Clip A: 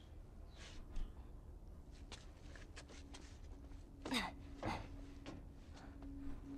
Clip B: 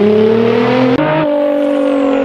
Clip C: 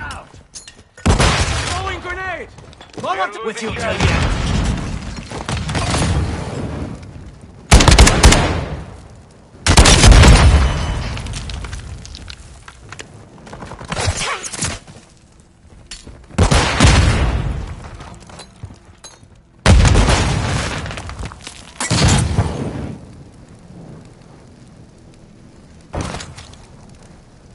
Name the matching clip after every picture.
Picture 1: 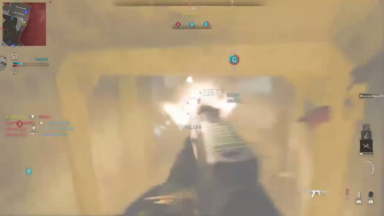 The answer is C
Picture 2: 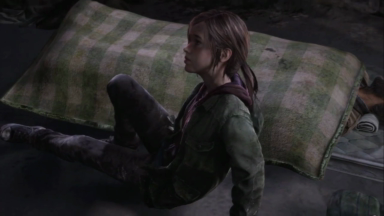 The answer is A